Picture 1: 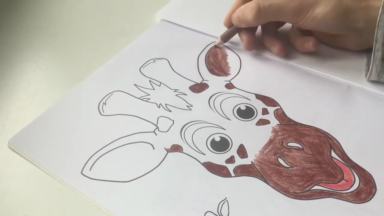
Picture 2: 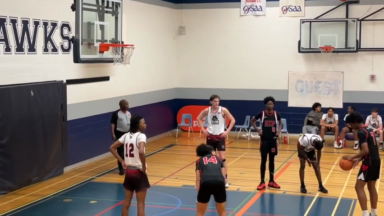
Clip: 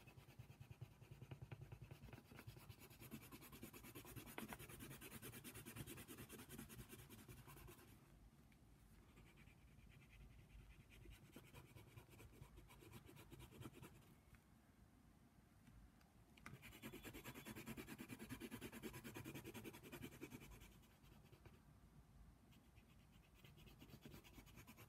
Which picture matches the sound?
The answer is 1